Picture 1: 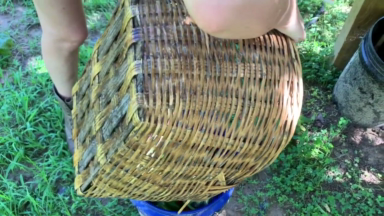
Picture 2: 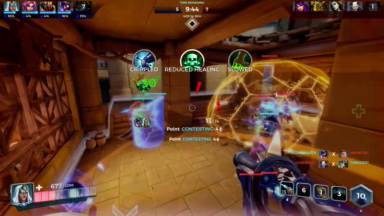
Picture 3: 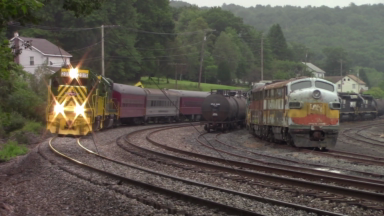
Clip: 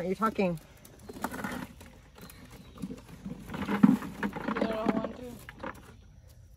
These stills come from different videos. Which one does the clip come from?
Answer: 1